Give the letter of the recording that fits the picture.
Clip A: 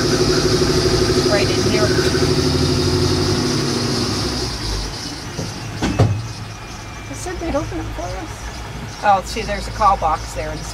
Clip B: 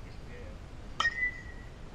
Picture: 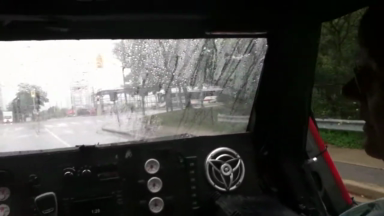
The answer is A